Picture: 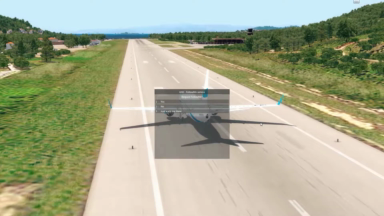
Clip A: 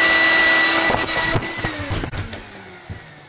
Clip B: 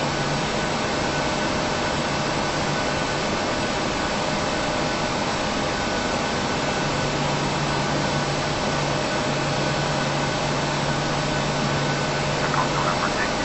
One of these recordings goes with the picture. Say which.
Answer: B